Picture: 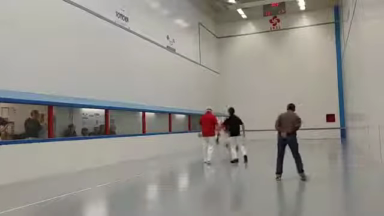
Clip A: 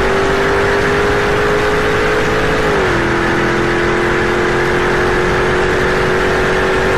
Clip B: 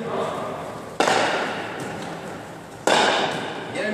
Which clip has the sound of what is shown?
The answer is B